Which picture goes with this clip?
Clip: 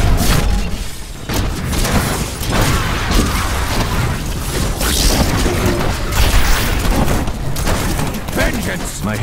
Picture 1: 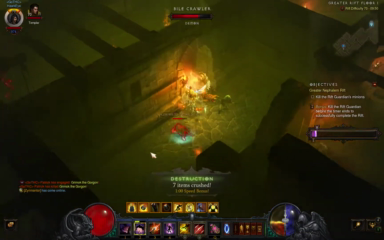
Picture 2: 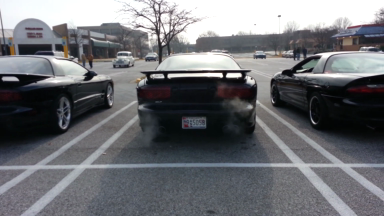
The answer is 1